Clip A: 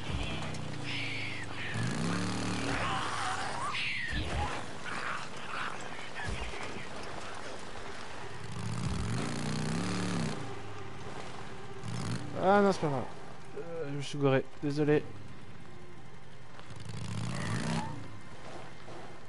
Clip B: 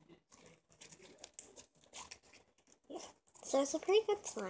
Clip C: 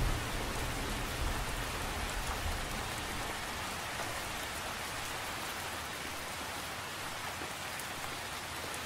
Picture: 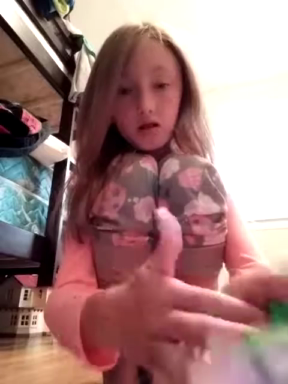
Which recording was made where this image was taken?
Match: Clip B